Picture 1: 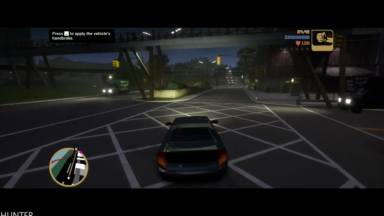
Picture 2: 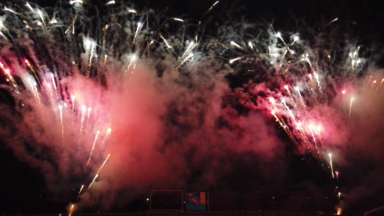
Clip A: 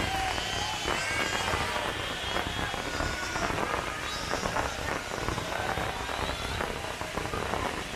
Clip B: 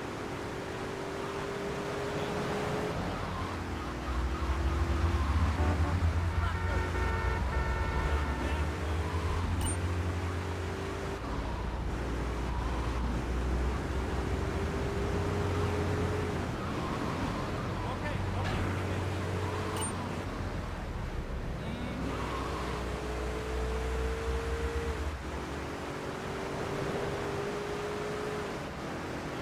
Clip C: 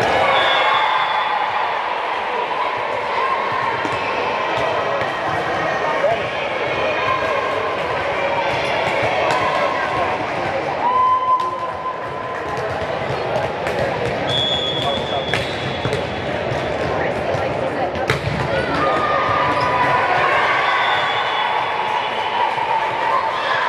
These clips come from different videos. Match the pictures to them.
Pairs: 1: B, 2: A